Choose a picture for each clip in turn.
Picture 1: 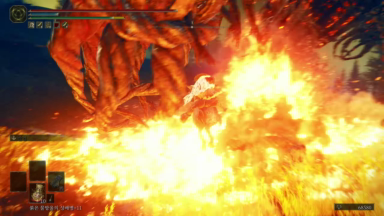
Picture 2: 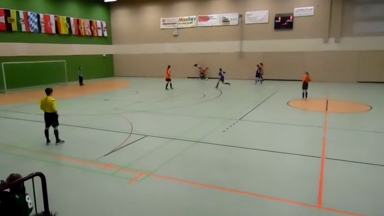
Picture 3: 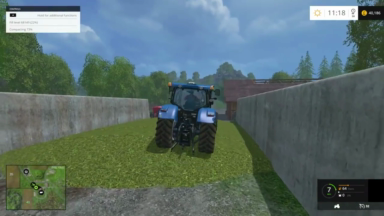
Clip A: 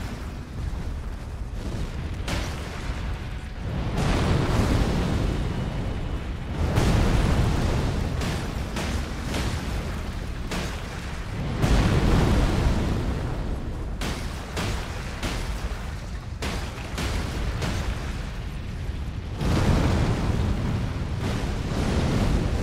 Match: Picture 1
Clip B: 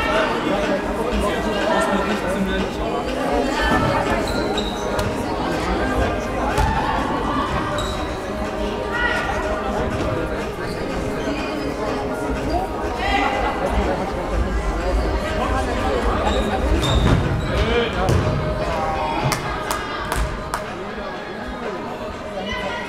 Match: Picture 2